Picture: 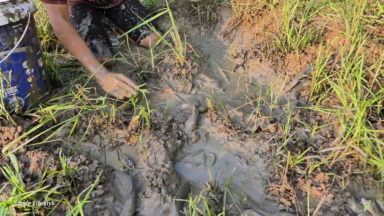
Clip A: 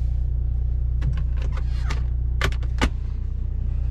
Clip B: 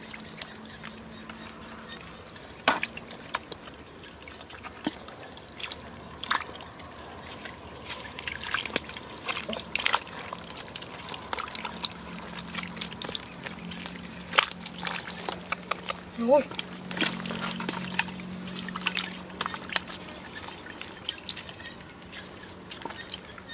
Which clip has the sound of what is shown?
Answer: B